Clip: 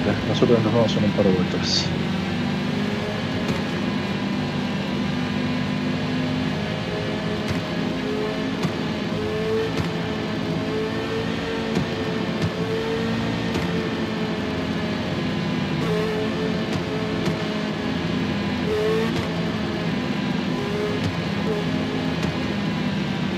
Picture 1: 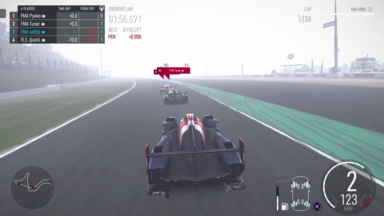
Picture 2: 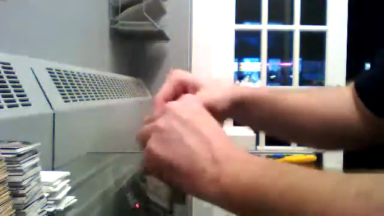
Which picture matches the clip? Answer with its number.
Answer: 1